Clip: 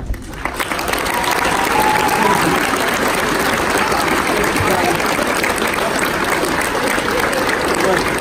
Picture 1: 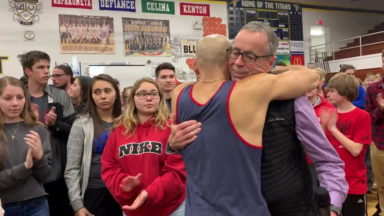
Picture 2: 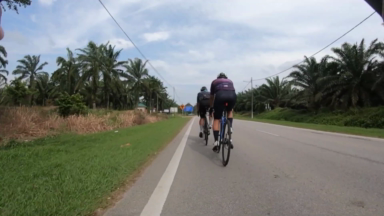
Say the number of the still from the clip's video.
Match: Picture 1